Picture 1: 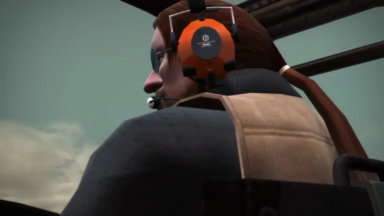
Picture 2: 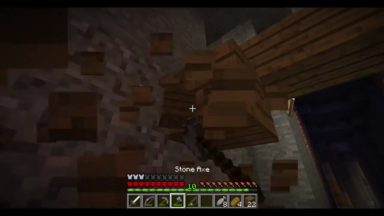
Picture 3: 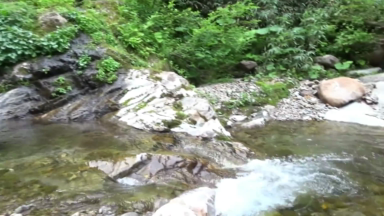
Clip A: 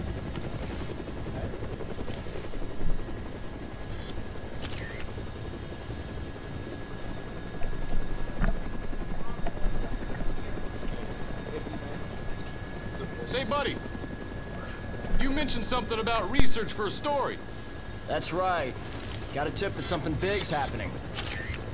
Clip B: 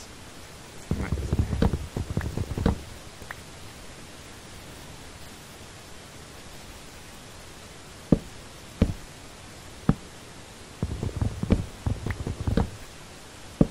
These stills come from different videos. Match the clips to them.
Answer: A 1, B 2